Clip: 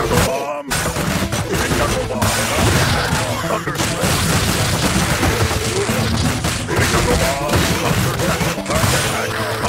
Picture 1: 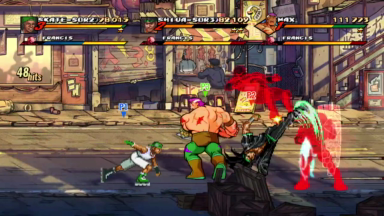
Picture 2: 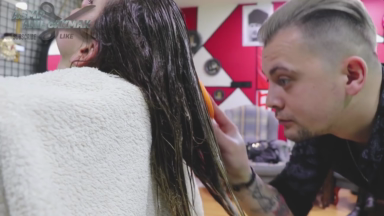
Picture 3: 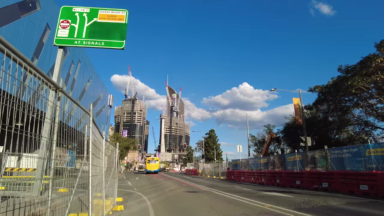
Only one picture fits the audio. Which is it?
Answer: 1